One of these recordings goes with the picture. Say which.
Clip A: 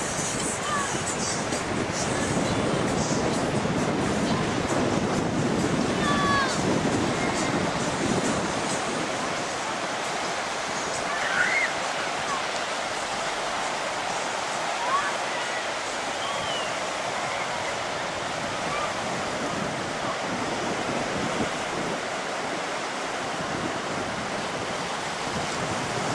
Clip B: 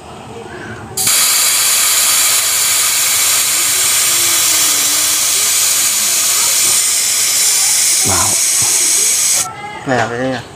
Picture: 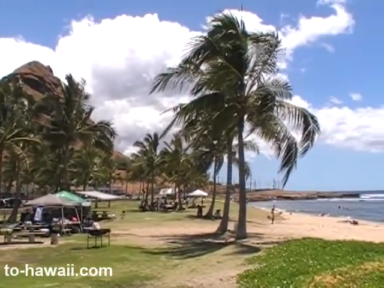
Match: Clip A